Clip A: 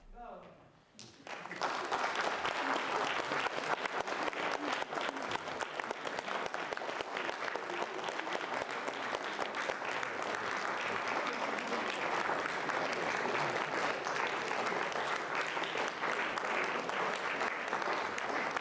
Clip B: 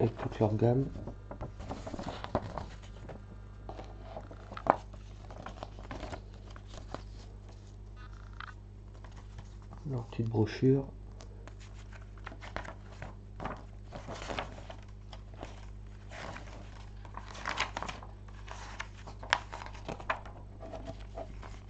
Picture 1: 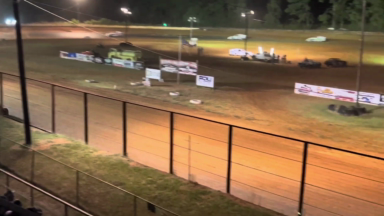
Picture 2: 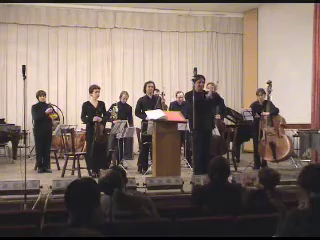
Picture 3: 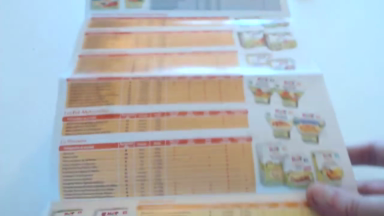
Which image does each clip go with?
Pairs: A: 2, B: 3